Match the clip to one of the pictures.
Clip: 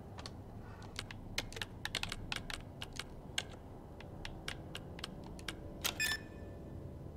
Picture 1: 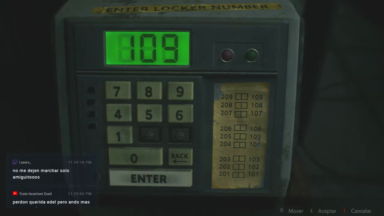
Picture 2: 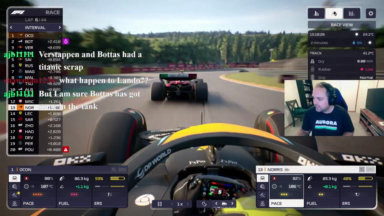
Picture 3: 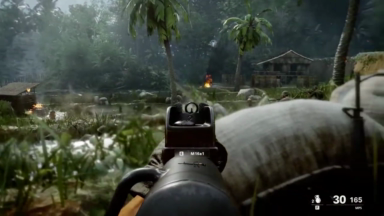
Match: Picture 1